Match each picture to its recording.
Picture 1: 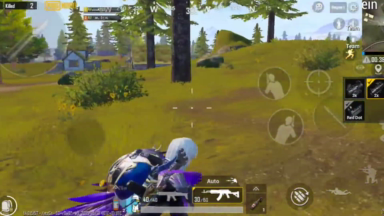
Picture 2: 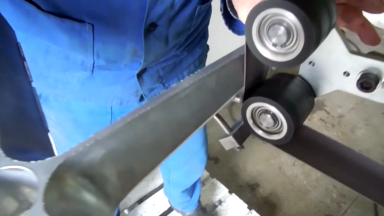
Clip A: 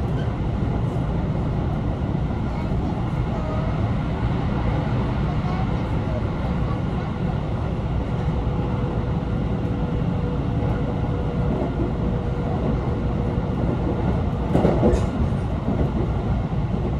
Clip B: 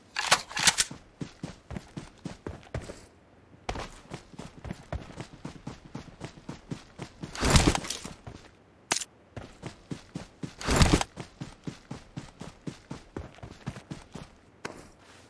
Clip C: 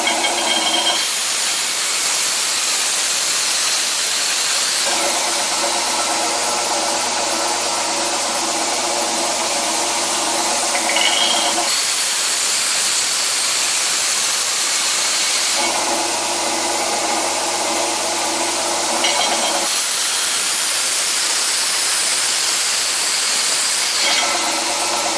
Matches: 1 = B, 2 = C